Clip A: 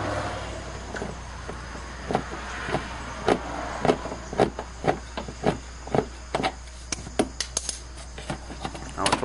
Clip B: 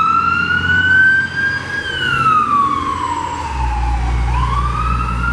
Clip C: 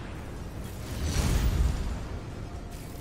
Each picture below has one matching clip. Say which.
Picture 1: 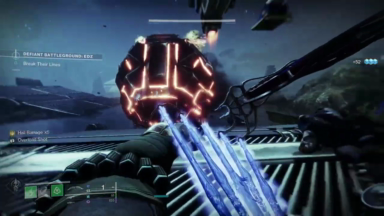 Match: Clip C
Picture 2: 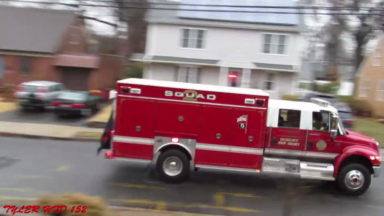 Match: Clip B